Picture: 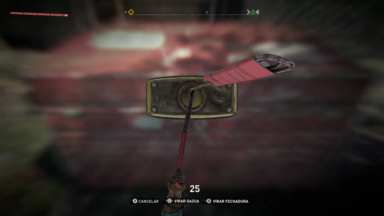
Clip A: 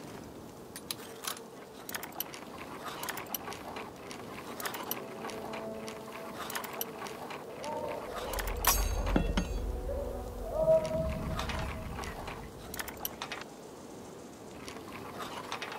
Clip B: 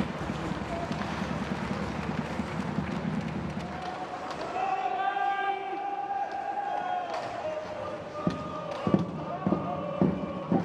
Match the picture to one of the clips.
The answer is A